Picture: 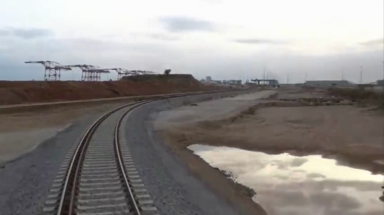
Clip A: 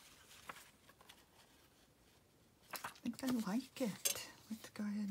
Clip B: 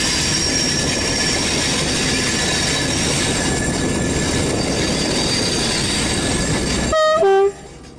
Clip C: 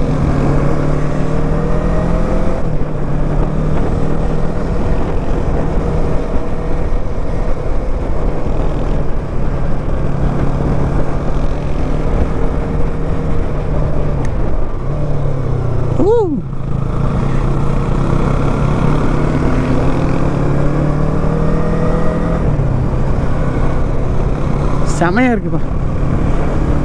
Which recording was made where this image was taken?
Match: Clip B